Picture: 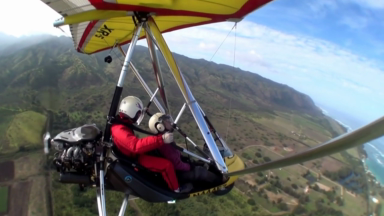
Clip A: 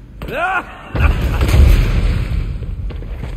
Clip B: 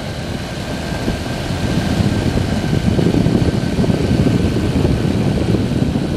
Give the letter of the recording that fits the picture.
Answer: B